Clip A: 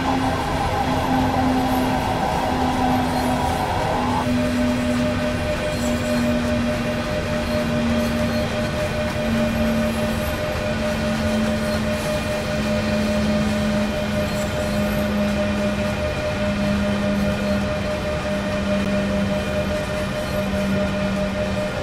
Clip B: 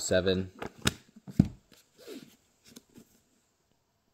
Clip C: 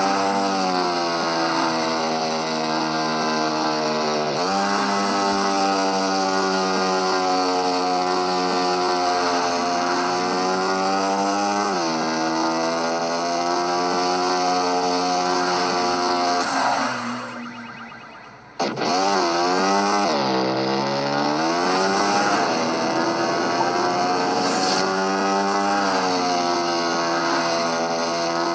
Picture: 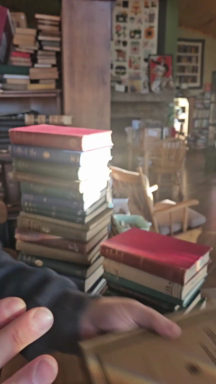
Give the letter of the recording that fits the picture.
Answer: B